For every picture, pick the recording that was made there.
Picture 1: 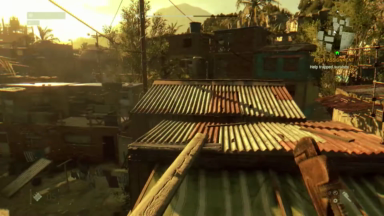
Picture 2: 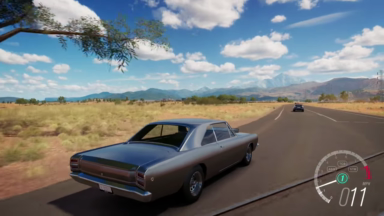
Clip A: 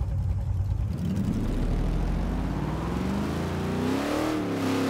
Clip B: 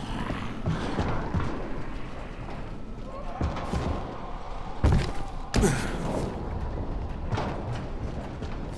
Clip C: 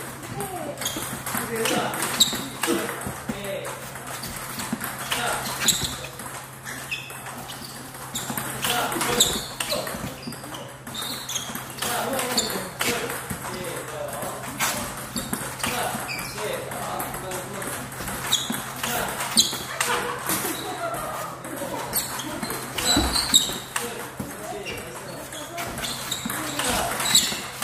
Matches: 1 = B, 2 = A